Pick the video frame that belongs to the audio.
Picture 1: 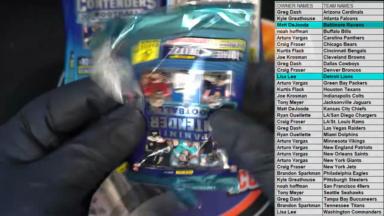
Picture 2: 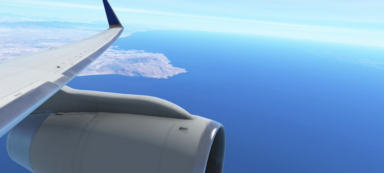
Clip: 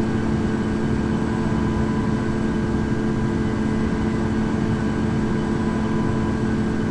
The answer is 2